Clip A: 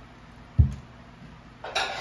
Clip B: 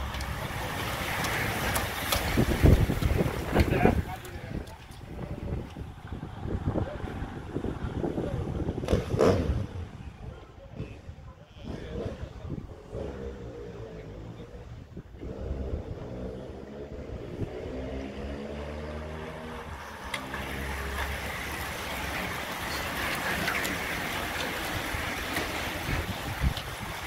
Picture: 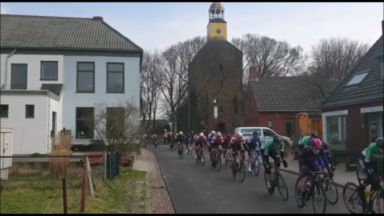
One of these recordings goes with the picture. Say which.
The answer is B